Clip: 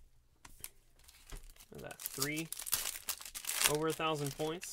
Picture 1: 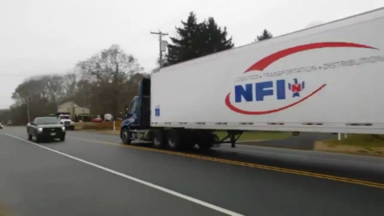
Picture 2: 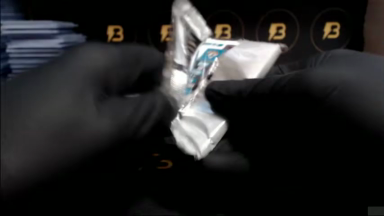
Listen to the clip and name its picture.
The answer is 2